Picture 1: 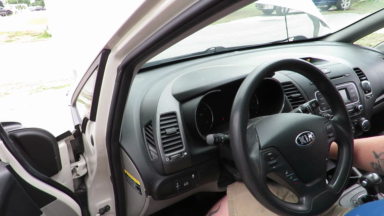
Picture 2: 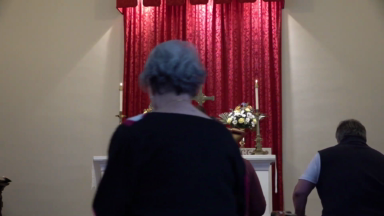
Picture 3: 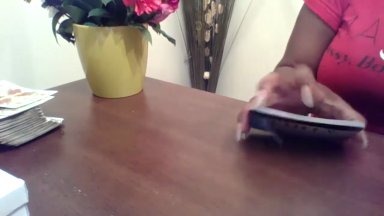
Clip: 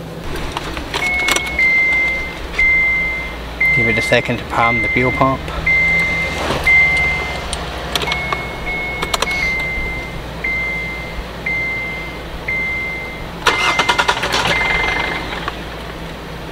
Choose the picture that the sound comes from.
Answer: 1